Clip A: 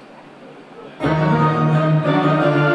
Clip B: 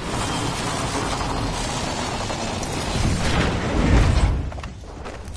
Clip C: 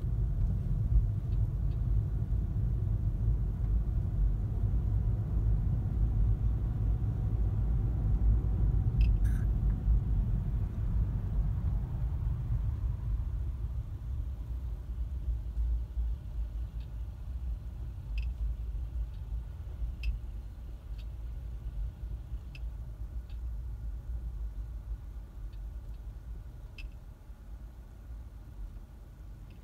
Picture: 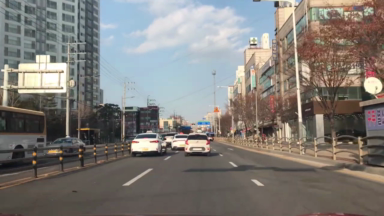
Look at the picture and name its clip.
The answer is C